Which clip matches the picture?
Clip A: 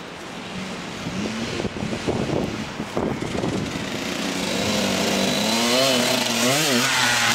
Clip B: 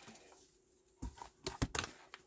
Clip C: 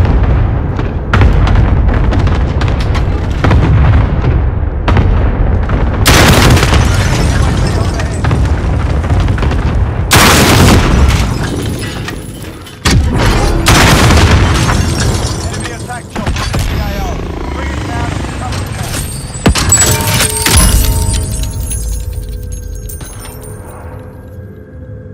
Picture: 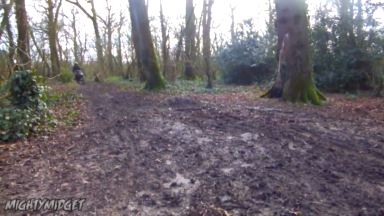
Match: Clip A